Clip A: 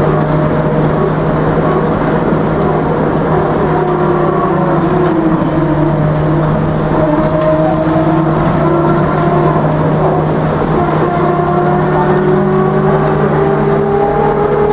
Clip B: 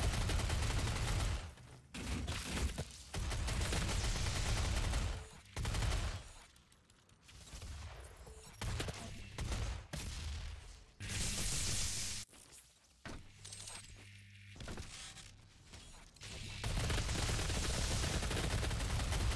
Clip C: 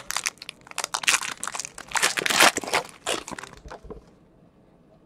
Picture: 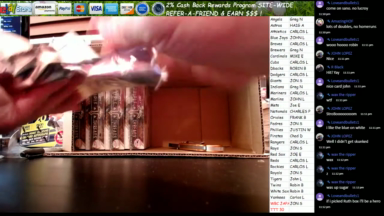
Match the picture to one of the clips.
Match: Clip C